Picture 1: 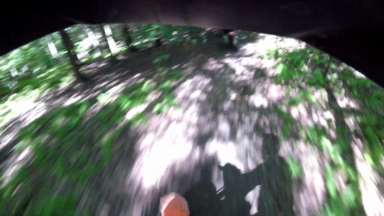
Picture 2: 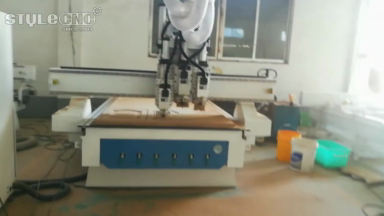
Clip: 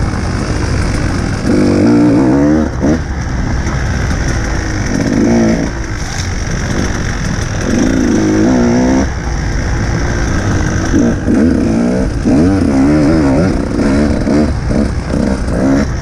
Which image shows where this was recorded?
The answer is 1